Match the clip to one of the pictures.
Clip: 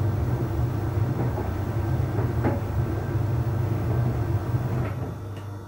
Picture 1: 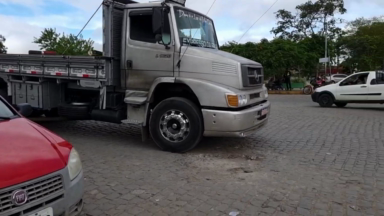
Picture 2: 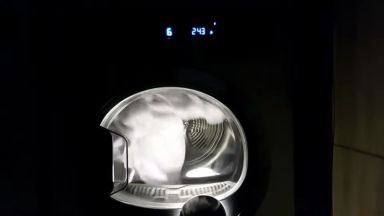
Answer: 2